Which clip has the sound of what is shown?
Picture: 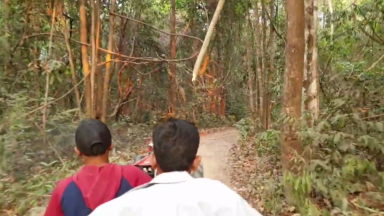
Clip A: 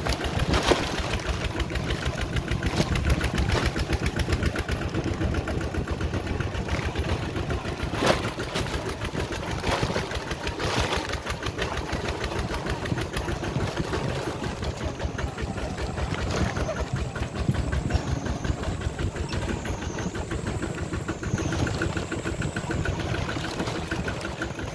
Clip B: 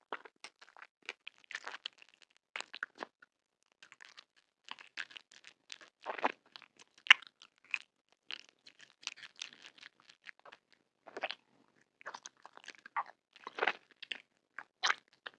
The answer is A